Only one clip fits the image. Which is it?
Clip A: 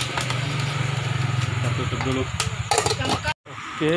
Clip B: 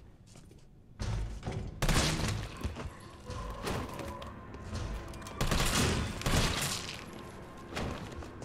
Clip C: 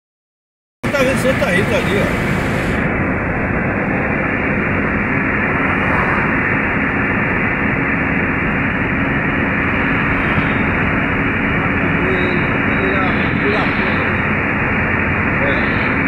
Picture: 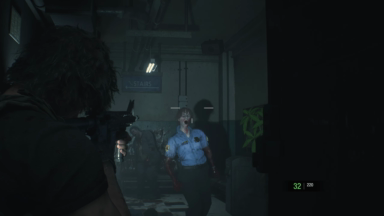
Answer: B